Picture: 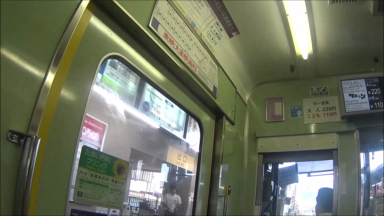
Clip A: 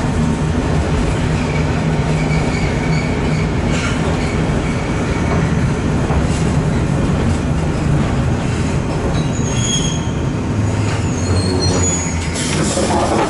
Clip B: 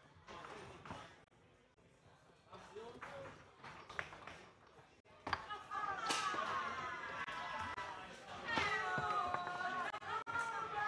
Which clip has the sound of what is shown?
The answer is A